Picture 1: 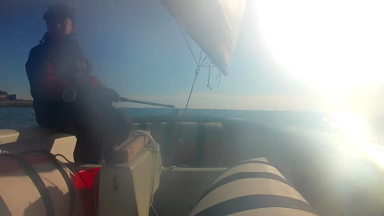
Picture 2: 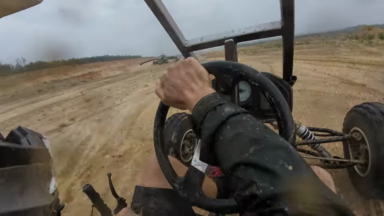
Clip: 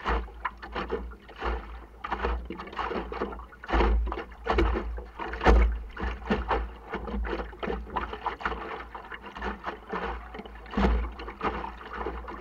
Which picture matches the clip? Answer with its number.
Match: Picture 1